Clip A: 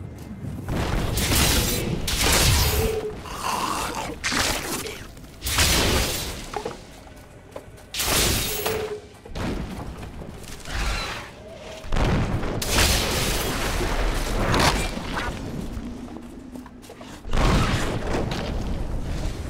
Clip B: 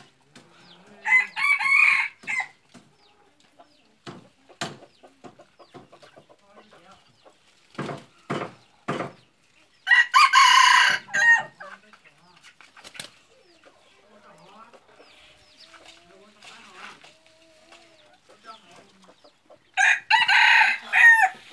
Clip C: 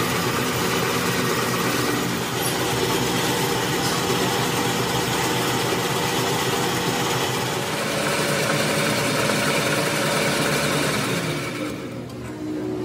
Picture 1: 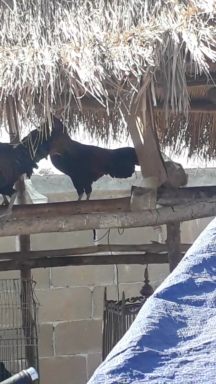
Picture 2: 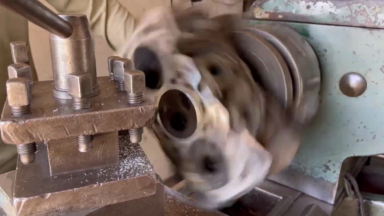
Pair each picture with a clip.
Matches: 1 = B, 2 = C